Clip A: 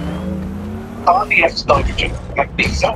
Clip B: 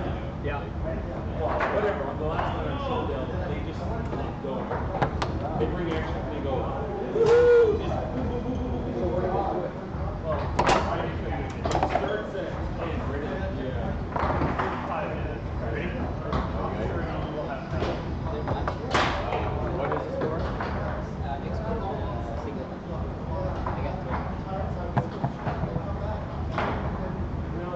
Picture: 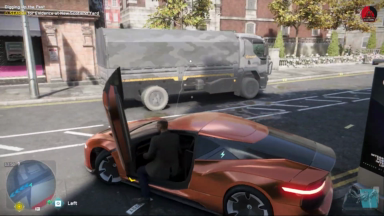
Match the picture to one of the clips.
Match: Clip A